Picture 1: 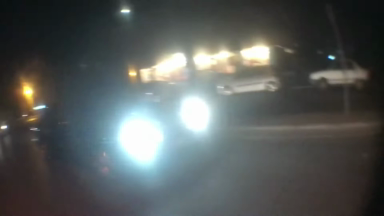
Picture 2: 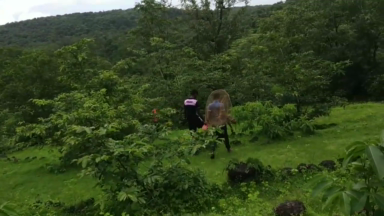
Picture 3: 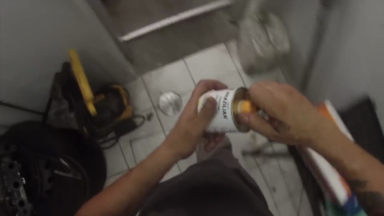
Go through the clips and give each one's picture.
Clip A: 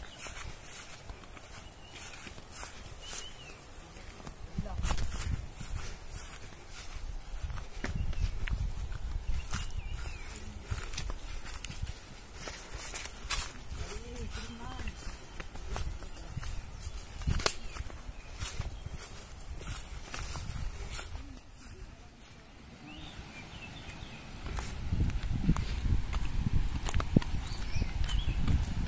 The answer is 2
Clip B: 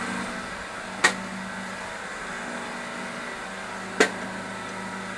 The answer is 3